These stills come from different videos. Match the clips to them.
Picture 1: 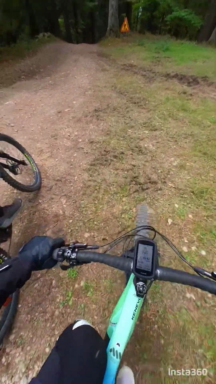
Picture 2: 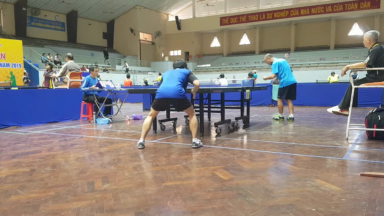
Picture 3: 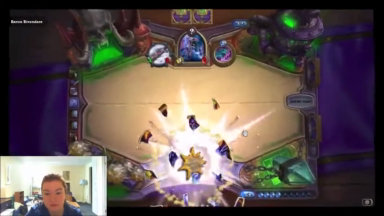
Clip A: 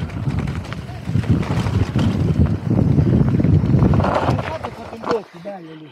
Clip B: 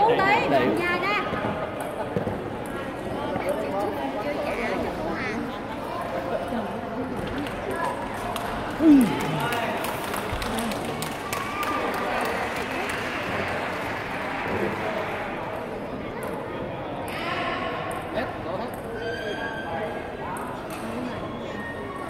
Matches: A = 1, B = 2